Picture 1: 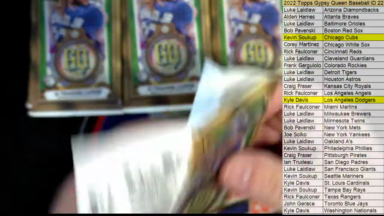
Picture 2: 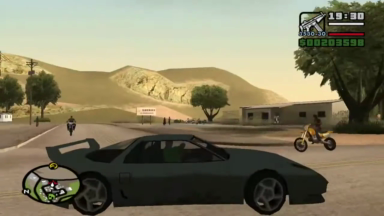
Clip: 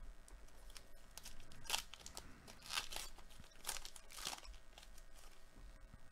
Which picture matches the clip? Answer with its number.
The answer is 1